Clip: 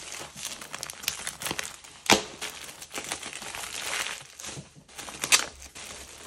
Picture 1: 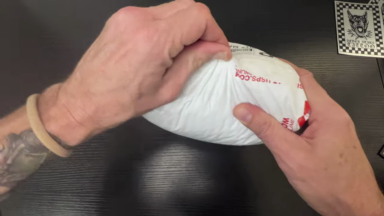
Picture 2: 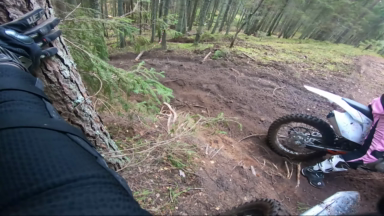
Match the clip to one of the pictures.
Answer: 1